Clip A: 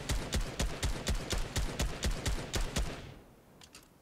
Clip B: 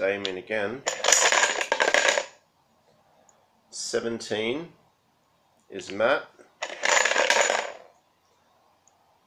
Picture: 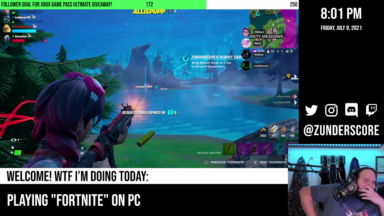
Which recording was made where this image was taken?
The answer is A